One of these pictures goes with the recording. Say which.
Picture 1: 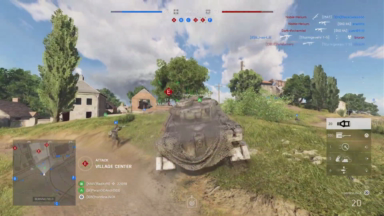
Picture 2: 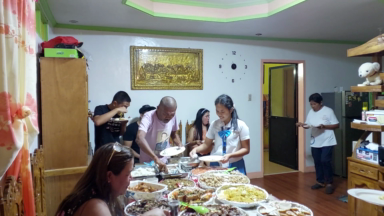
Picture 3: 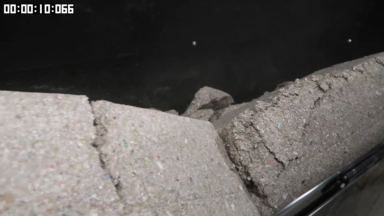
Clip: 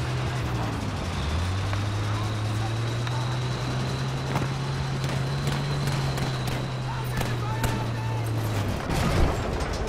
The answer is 1